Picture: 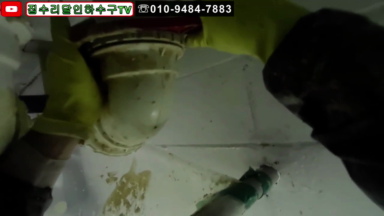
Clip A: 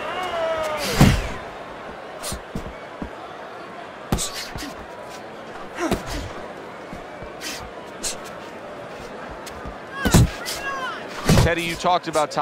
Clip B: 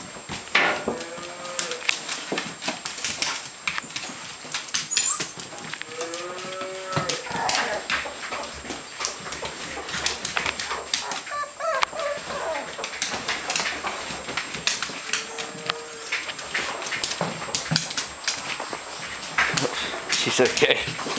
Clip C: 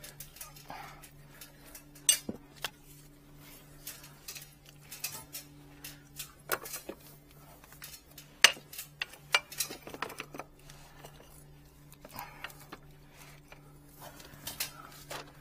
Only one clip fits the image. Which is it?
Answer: C